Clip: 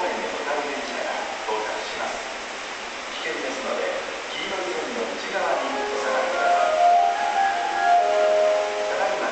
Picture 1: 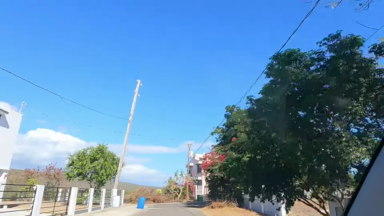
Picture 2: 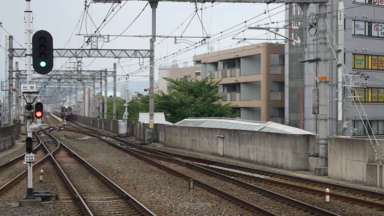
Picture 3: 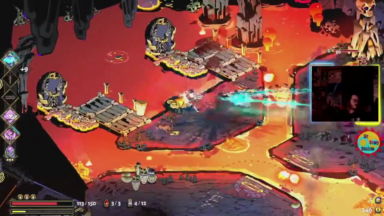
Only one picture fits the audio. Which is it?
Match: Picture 2